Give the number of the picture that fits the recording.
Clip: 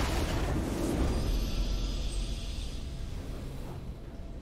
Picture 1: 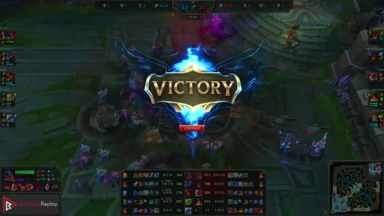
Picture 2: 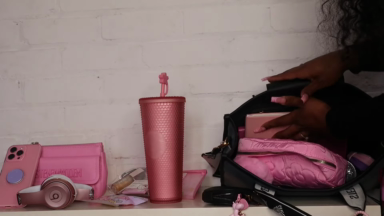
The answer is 1